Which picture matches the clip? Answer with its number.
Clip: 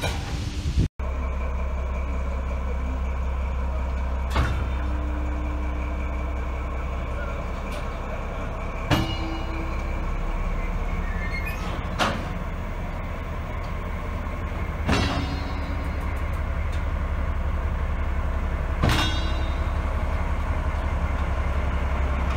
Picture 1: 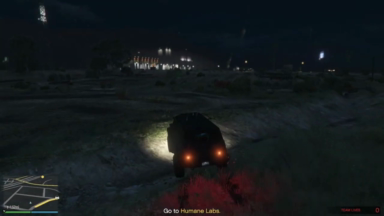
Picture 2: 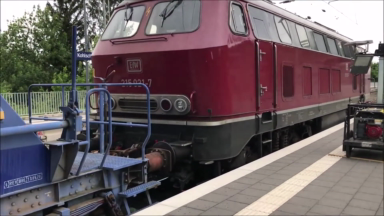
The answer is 2